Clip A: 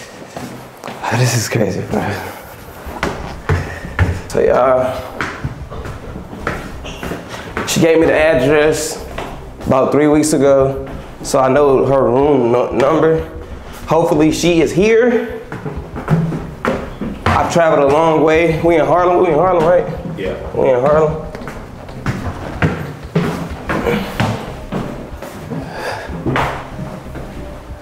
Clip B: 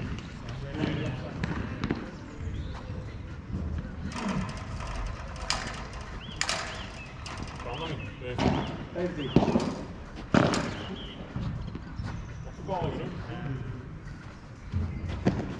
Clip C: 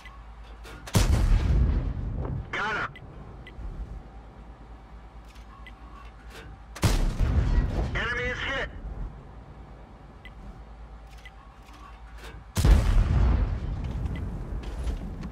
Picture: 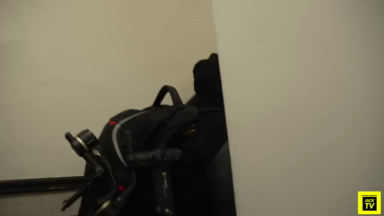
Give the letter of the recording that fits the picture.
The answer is A